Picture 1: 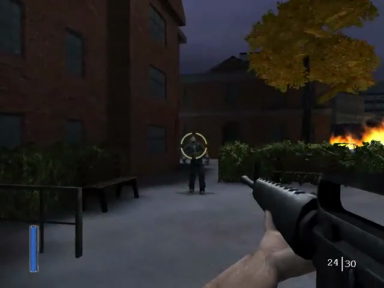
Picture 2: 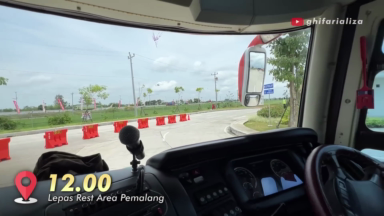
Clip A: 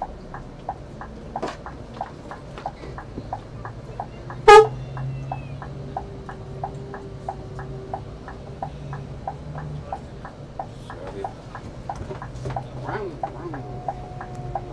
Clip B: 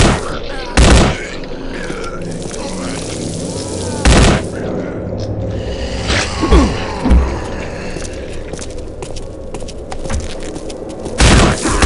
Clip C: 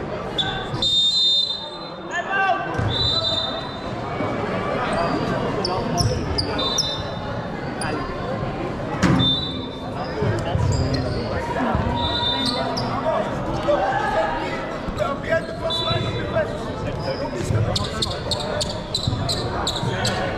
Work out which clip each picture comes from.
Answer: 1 B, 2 A